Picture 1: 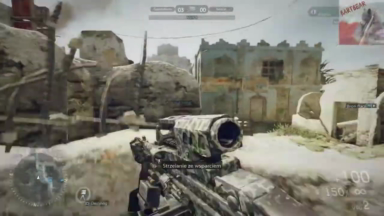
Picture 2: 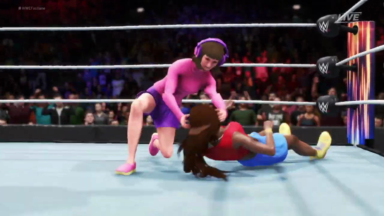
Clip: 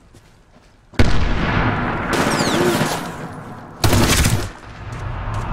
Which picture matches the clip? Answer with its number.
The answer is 1